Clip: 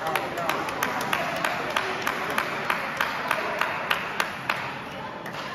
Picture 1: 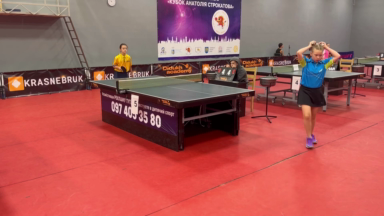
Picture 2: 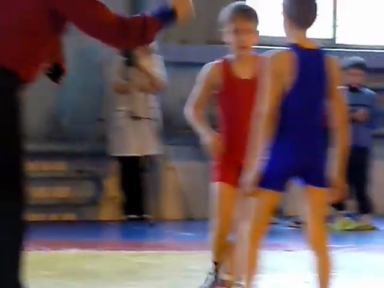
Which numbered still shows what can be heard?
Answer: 1